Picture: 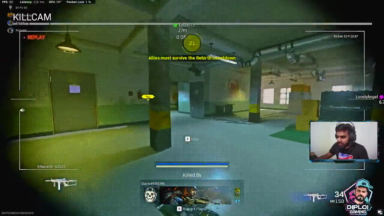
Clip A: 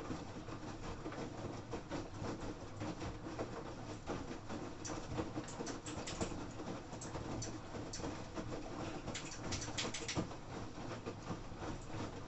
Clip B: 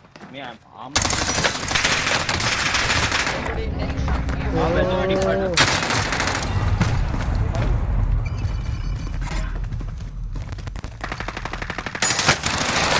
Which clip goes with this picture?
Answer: B